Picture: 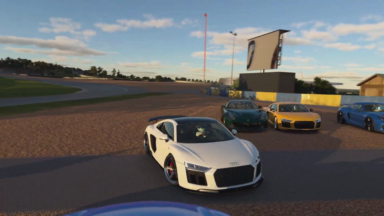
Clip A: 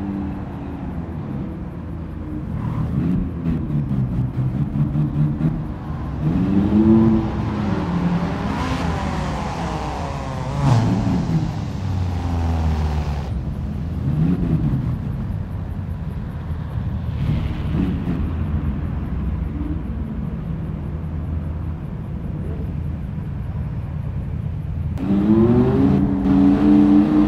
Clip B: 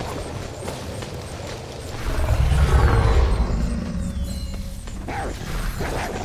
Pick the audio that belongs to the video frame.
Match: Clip A